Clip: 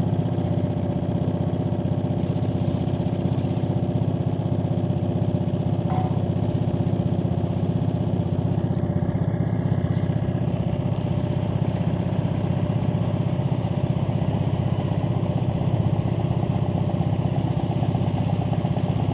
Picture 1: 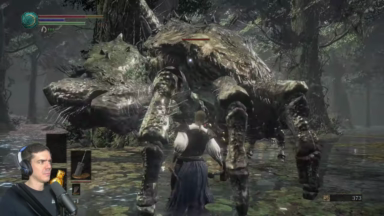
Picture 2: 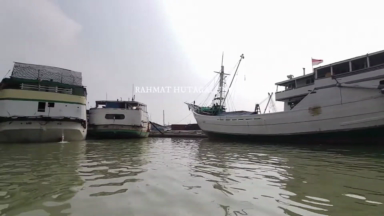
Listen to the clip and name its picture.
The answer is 2